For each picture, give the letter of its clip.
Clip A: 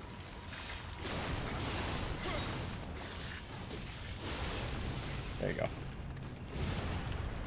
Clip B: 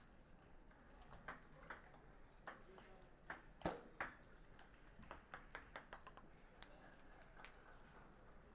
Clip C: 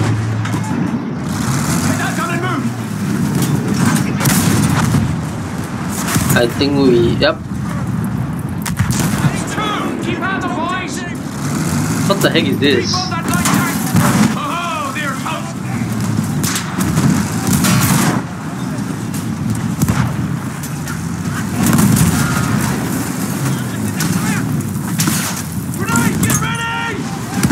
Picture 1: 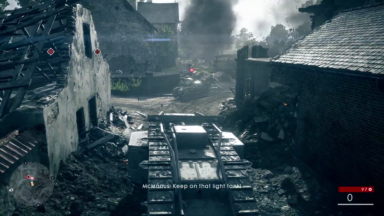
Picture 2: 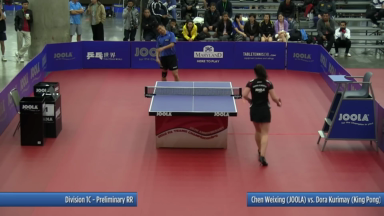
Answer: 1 C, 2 B